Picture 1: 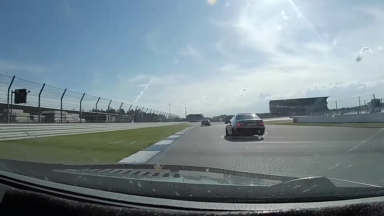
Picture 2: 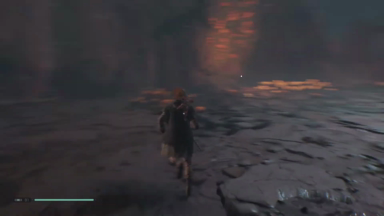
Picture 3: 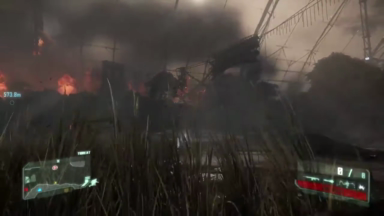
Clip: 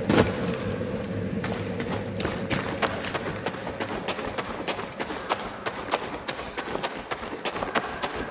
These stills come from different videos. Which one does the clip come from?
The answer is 2